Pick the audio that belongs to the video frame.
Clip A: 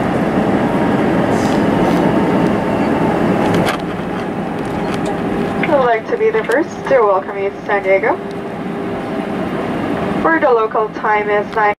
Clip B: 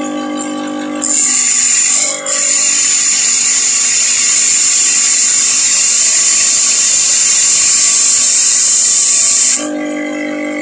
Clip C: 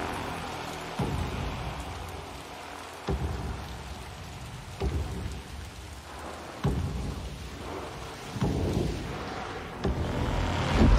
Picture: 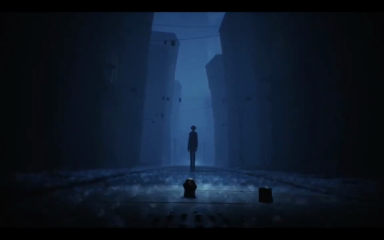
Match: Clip C